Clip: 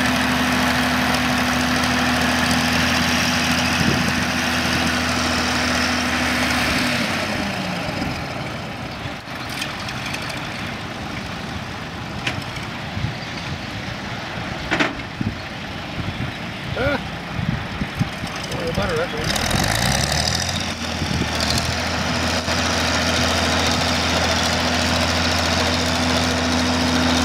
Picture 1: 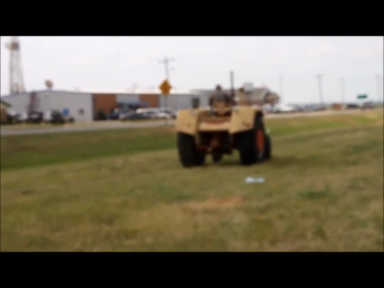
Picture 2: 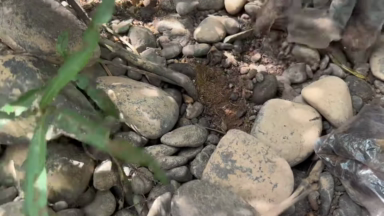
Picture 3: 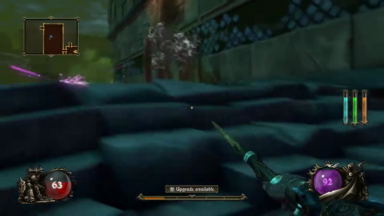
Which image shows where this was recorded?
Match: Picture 1